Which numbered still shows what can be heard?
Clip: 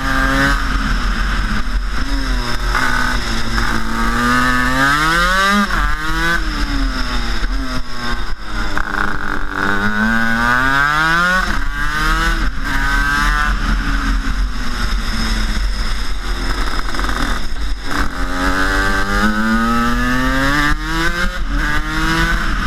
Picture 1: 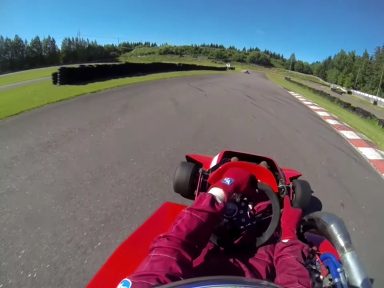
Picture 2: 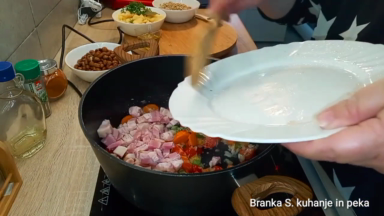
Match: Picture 1